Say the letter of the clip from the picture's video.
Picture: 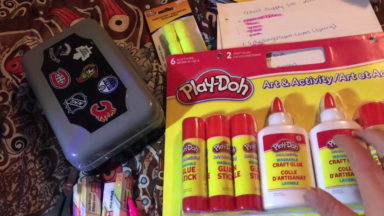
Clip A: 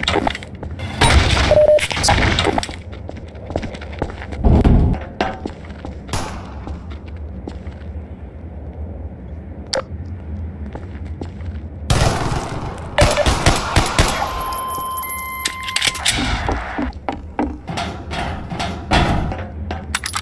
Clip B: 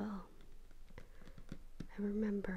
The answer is B